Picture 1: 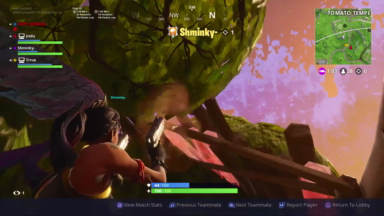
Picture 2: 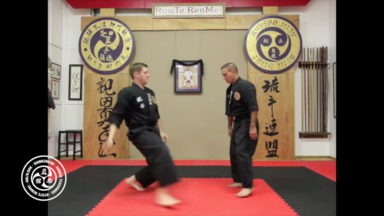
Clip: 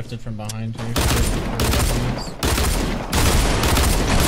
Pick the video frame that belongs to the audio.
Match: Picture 1